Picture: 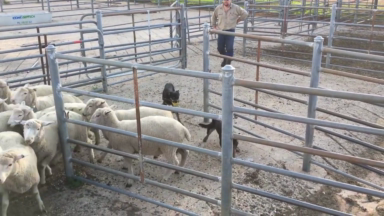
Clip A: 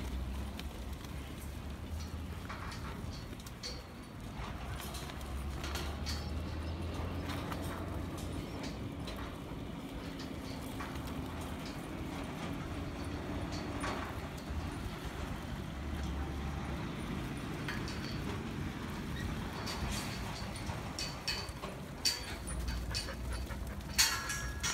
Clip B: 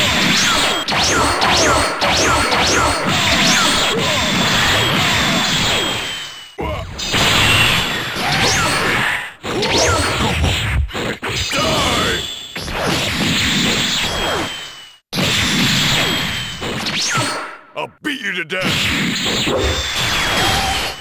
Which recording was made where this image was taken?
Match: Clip A